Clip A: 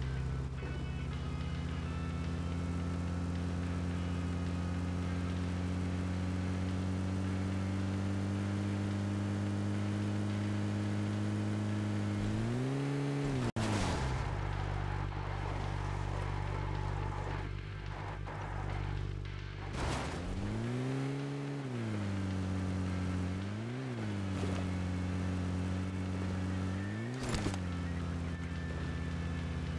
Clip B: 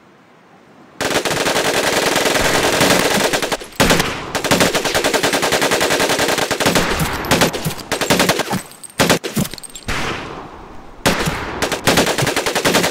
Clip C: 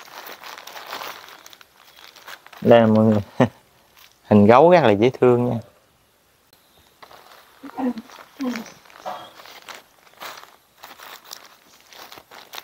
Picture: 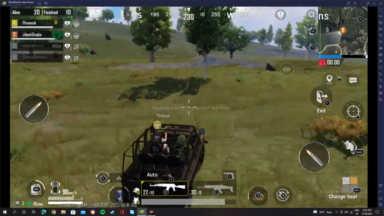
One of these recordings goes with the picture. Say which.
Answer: A